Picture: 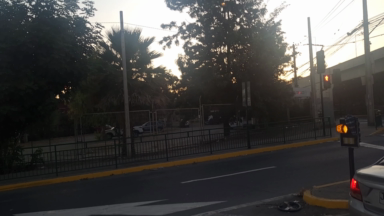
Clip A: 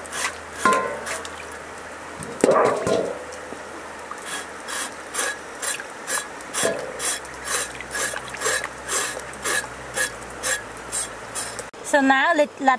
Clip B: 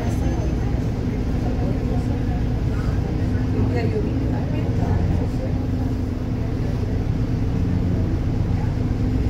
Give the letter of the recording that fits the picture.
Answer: B